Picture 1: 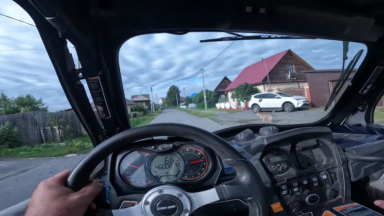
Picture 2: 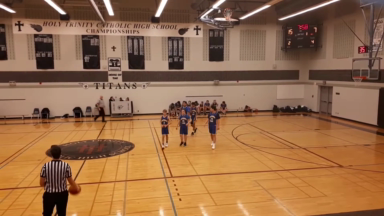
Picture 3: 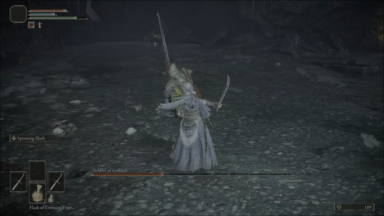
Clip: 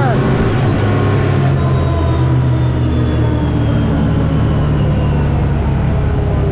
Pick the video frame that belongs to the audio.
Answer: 1